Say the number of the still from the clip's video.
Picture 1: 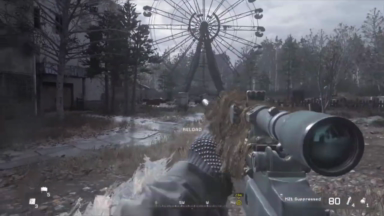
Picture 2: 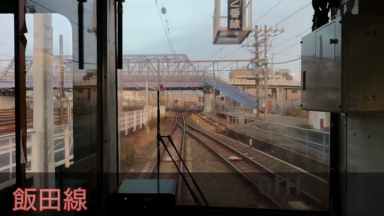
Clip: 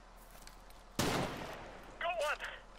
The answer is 1